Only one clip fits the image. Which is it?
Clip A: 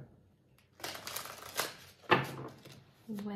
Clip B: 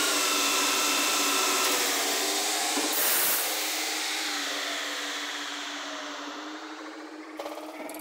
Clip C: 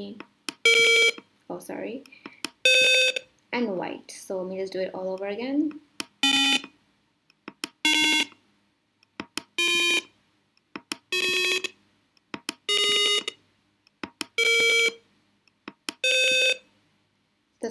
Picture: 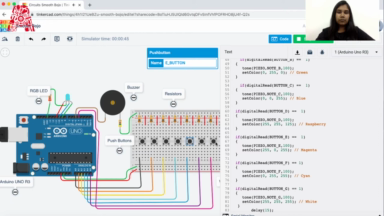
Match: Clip C